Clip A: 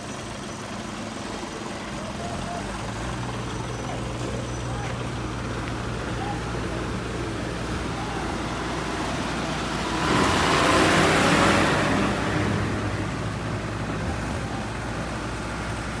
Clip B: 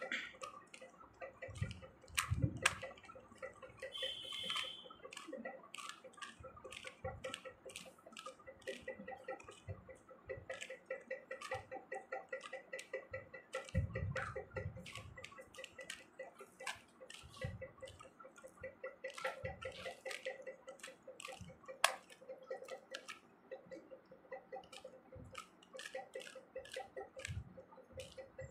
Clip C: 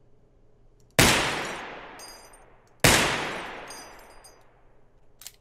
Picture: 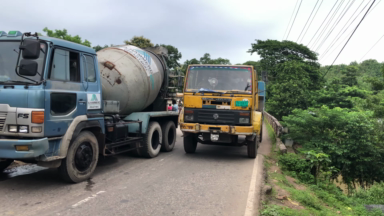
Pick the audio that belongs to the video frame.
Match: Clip A